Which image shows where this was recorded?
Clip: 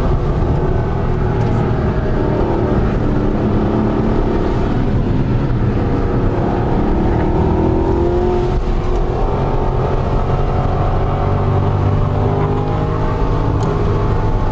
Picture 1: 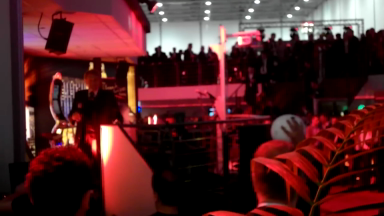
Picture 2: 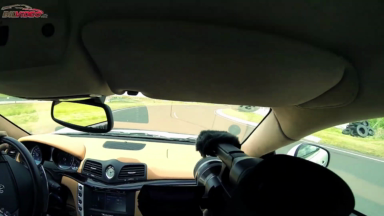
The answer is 2